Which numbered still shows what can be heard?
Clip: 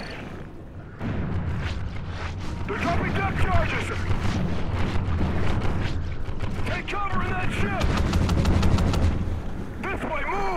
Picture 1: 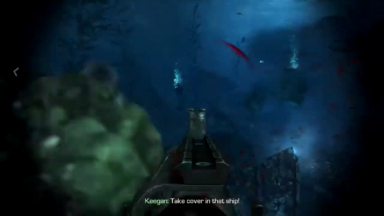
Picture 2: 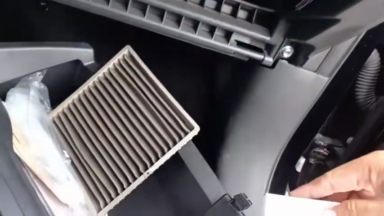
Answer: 1